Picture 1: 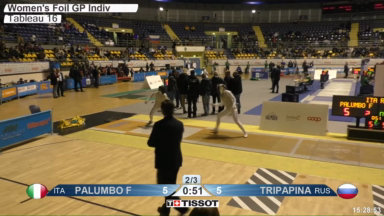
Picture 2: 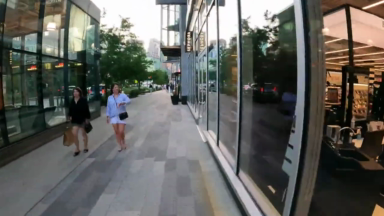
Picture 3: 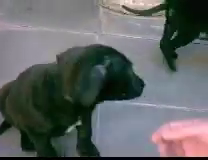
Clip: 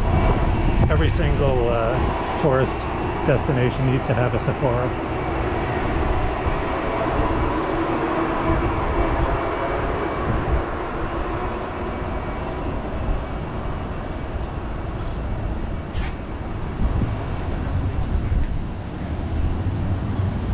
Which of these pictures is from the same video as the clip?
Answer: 2